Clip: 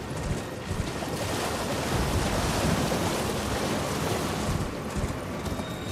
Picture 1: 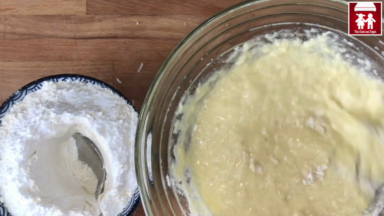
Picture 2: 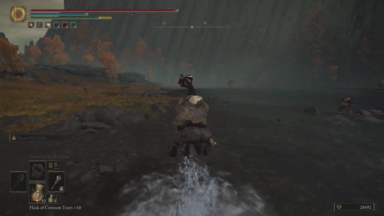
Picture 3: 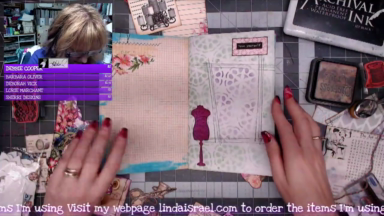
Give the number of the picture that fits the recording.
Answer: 2